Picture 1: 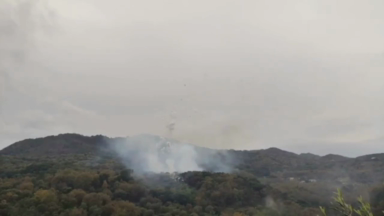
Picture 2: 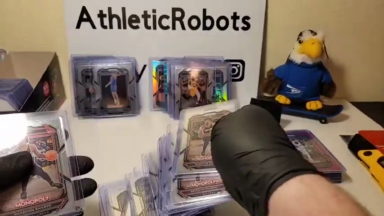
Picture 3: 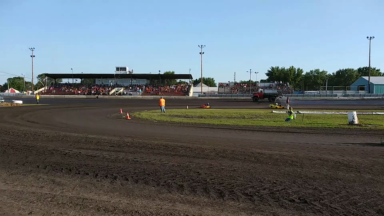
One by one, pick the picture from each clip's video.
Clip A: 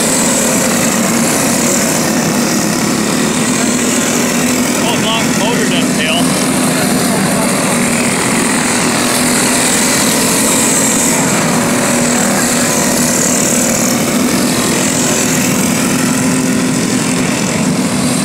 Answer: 3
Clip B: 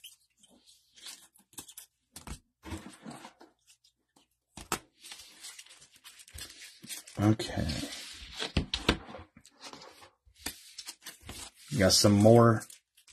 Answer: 2